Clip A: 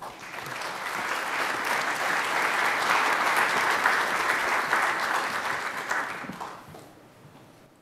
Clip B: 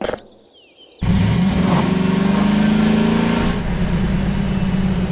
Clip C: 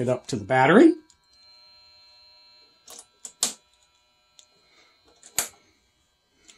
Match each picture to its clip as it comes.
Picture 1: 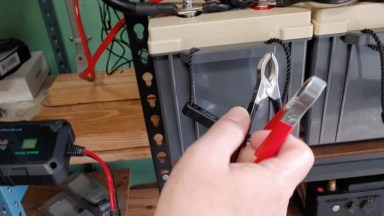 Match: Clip C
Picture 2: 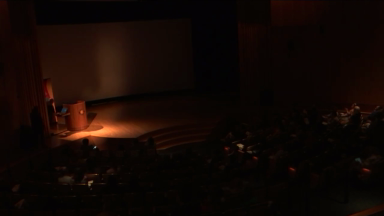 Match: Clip A